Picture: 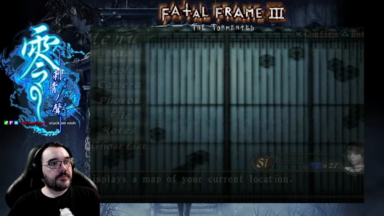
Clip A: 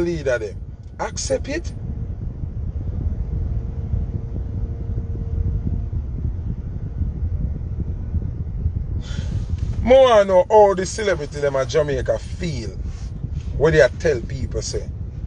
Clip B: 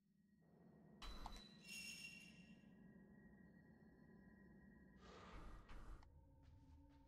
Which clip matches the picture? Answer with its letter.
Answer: B